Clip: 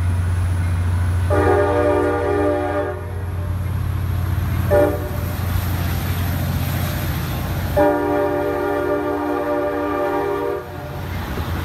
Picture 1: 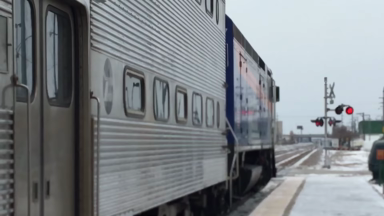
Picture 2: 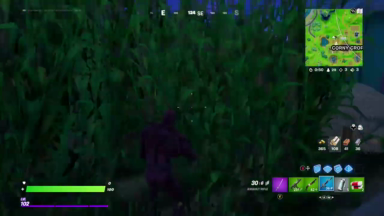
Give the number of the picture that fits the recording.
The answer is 1